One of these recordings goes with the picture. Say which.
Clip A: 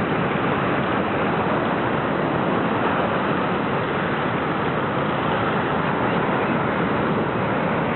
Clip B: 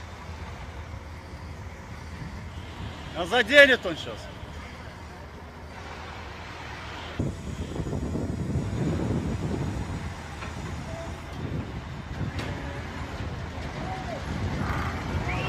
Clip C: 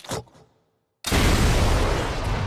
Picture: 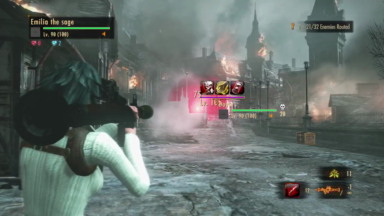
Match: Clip C